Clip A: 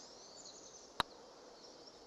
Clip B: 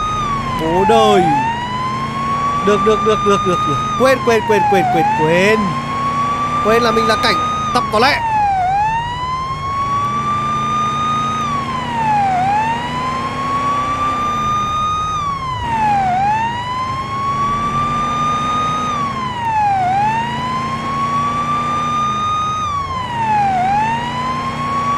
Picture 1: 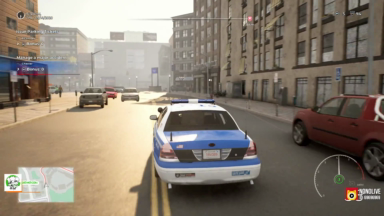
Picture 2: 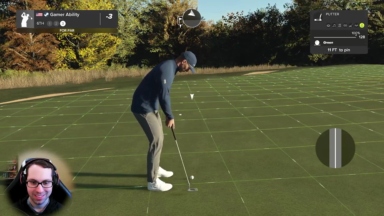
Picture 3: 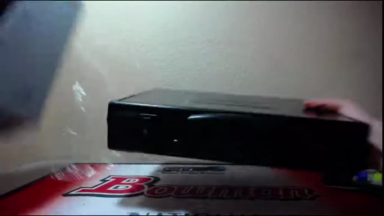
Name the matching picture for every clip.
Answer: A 2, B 1